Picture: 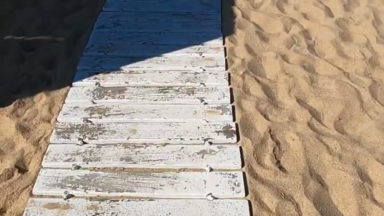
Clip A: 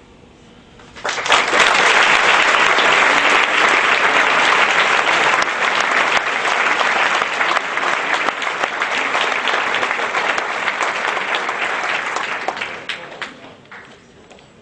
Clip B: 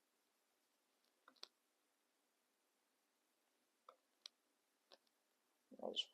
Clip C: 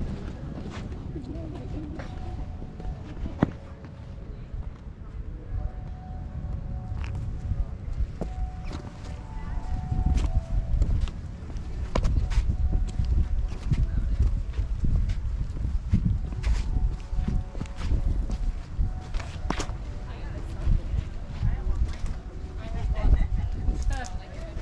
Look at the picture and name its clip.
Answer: C